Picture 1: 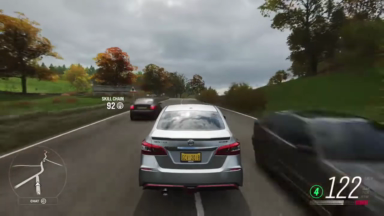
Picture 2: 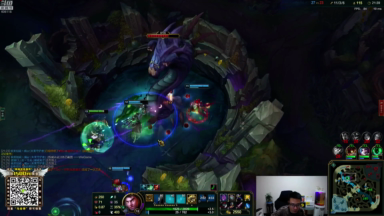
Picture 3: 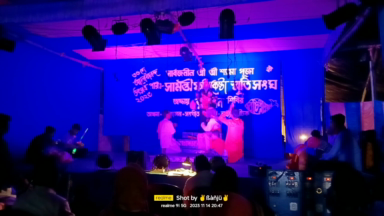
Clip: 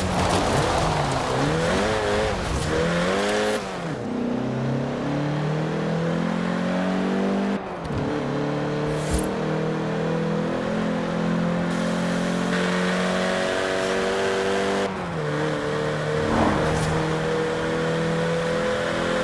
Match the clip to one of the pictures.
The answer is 1